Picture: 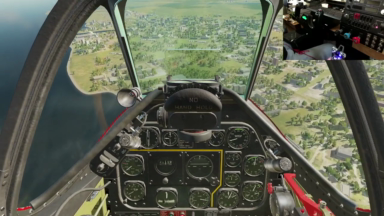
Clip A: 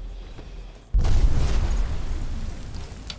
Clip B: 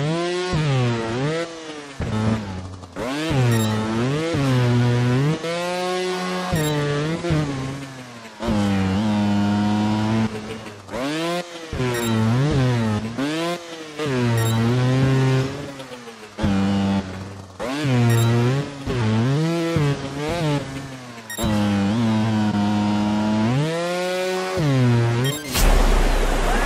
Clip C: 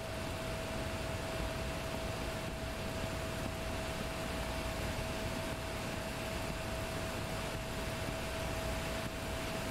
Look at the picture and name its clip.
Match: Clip C